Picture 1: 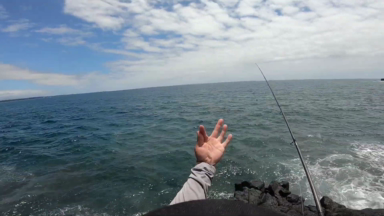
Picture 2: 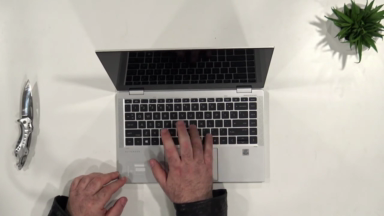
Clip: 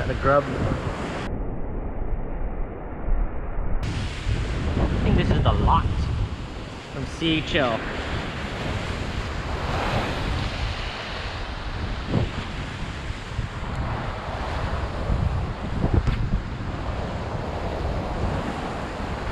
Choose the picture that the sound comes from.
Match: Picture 1